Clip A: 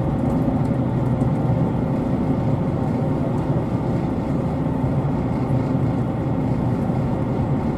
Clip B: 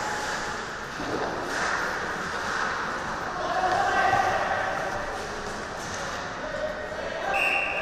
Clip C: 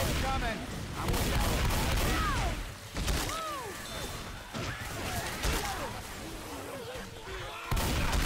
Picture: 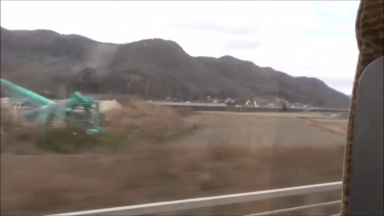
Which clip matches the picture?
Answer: A